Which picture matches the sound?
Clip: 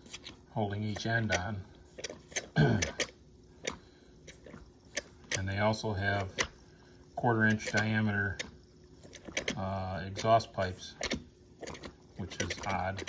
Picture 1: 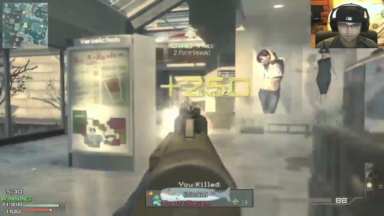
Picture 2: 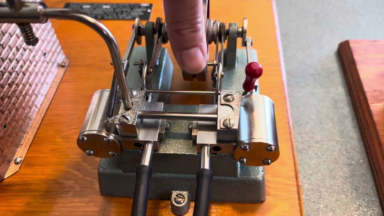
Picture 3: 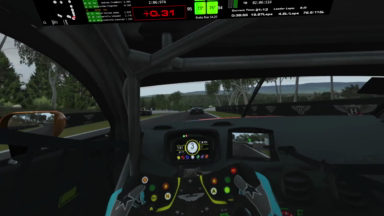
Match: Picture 2